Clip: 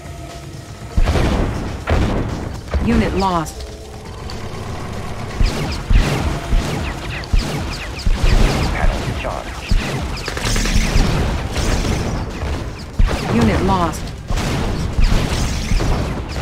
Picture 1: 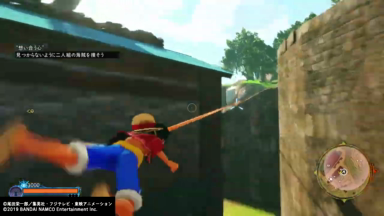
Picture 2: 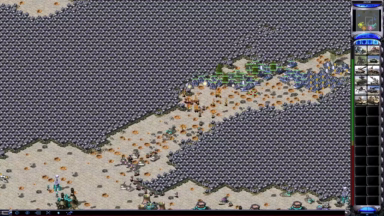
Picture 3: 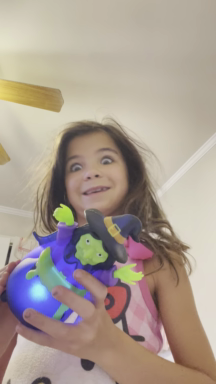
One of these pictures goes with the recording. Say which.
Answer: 2